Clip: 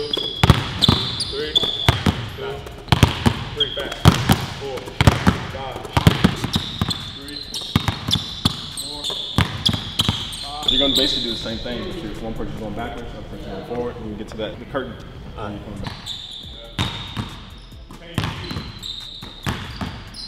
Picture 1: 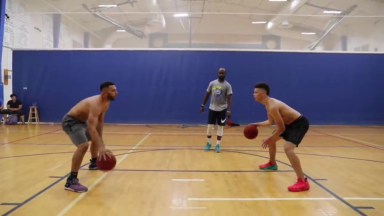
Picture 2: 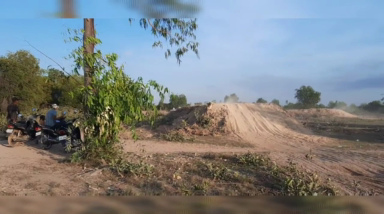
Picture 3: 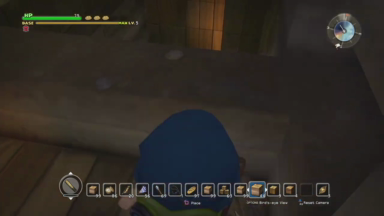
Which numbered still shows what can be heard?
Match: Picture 1